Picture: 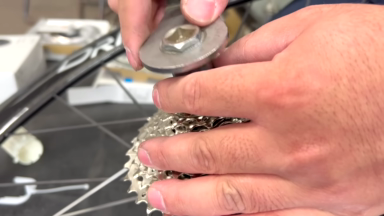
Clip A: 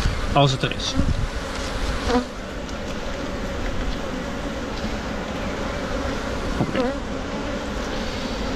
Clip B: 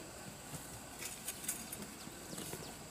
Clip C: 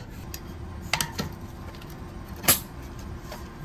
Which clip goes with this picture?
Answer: C